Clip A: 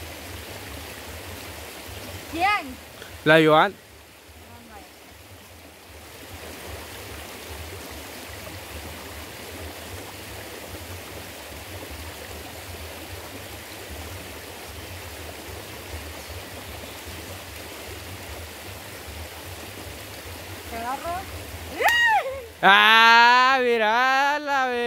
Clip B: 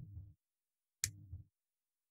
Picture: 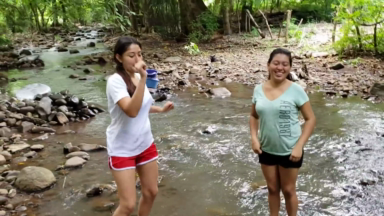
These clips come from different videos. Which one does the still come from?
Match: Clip A